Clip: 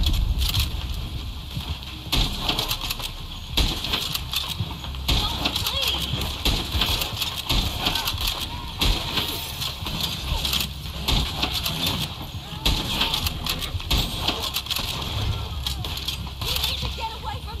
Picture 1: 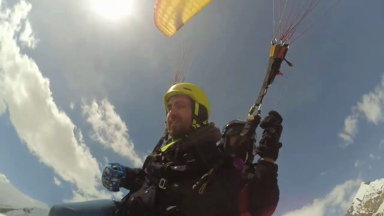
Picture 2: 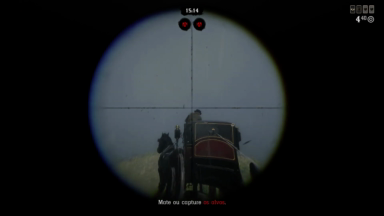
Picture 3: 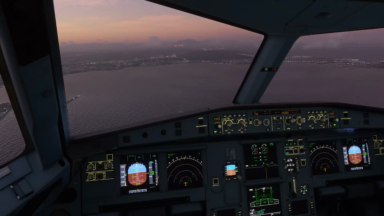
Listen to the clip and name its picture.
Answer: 2